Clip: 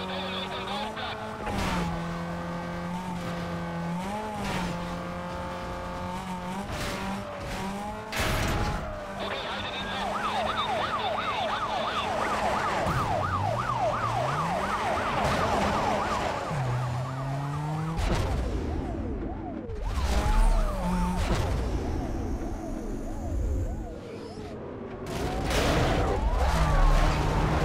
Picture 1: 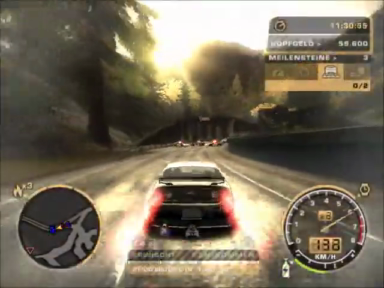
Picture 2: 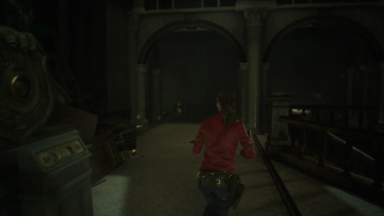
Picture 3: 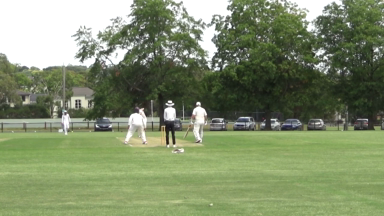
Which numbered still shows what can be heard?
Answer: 1